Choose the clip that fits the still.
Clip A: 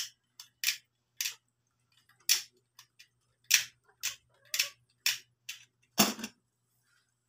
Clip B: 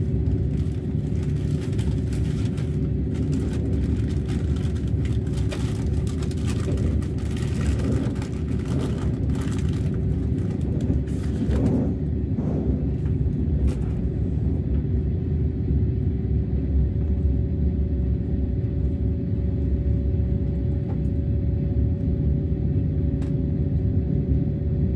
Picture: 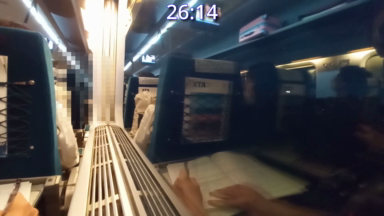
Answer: B